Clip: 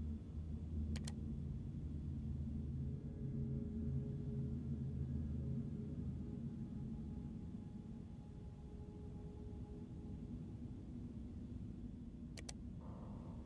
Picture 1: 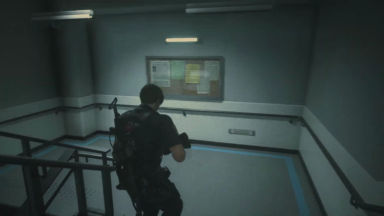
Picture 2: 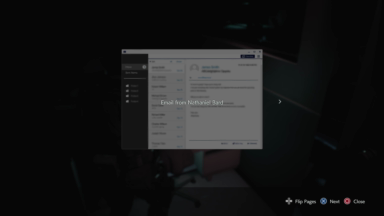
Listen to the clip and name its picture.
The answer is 2